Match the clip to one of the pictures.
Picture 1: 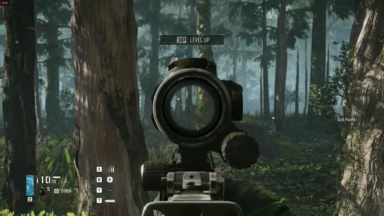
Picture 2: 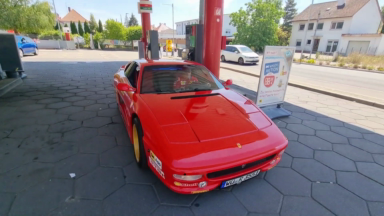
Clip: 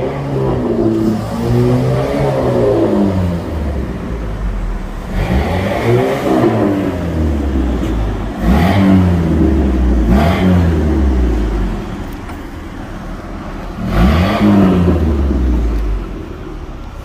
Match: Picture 2